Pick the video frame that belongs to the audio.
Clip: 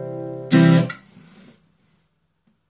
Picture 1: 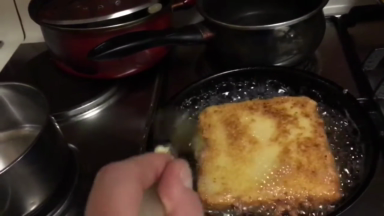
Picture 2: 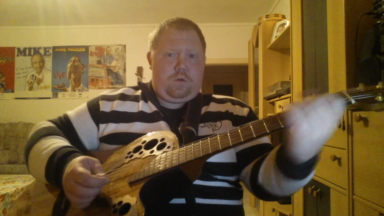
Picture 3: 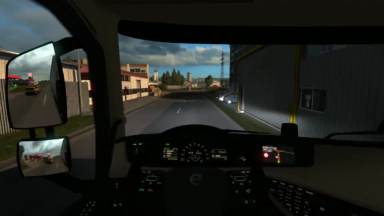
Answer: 2